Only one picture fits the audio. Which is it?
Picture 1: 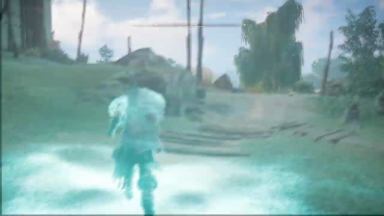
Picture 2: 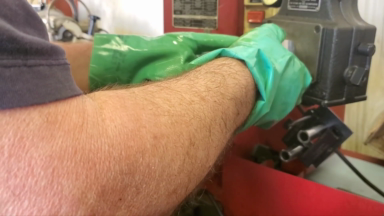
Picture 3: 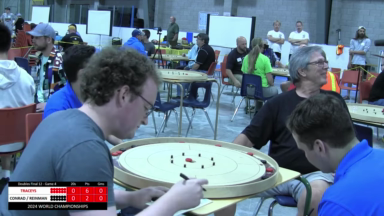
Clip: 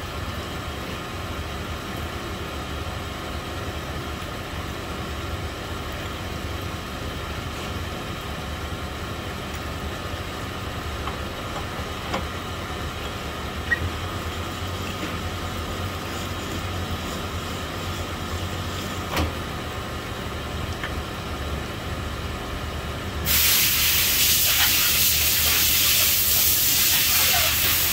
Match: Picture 2